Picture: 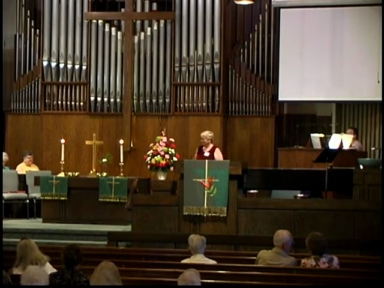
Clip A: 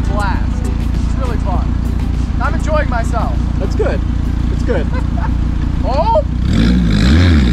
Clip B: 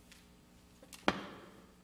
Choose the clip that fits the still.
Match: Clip B